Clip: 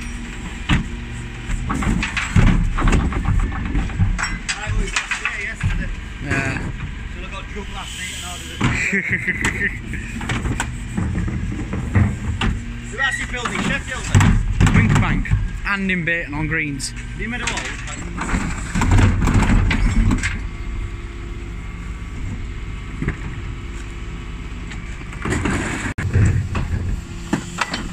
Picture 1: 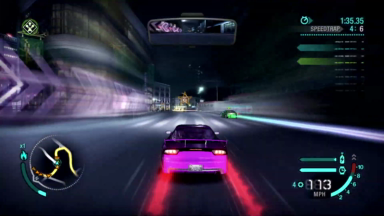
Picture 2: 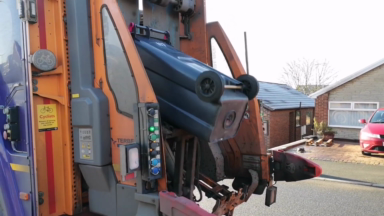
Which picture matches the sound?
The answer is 2